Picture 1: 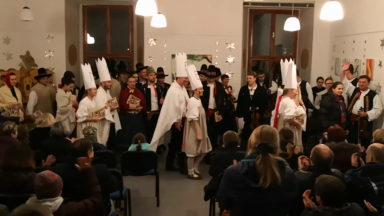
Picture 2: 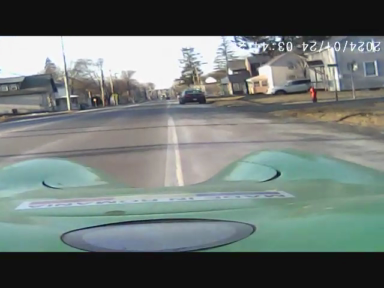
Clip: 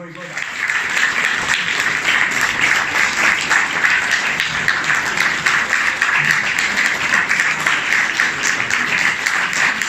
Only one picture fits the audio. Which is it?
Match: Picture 1